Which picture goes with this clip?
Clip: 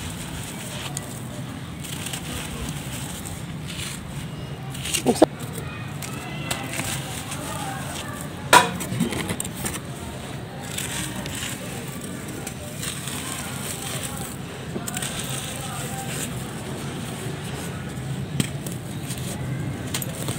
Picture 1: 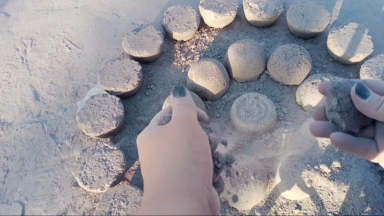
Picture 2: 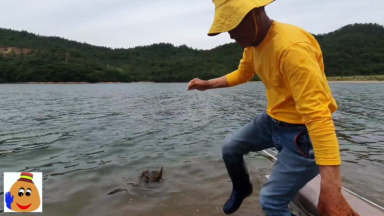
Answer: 1